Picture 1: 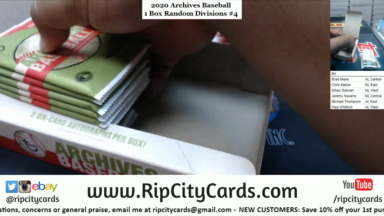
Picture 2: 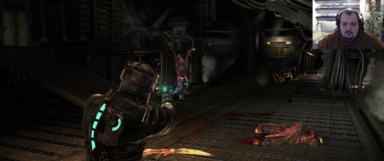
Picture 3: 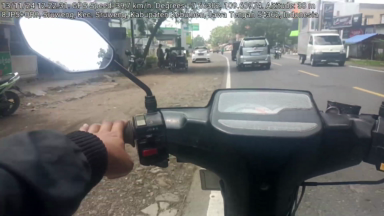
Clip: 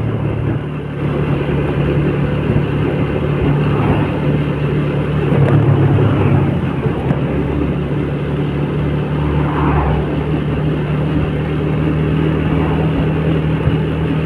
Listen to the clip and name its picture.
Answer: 3